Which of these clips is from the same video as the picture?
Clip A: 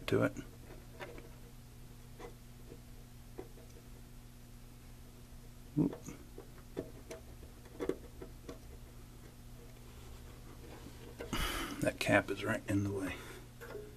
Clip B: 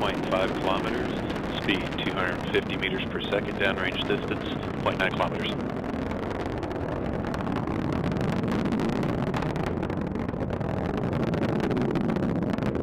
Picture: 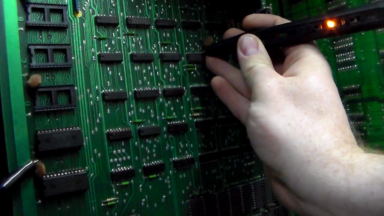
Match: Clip A